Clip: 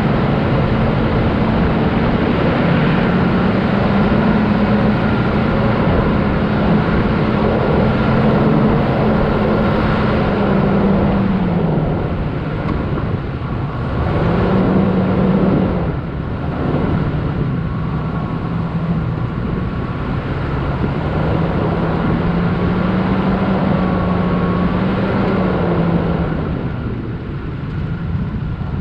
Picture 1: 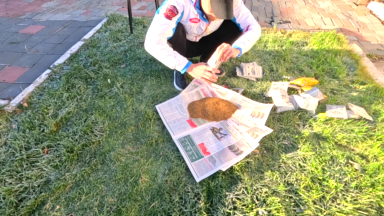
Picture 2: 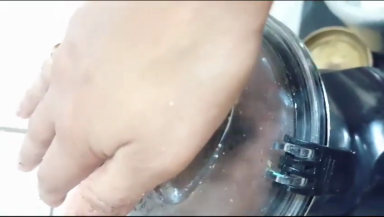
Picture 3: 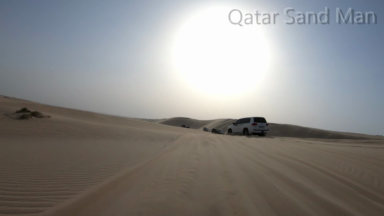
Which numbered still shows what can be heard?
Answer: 3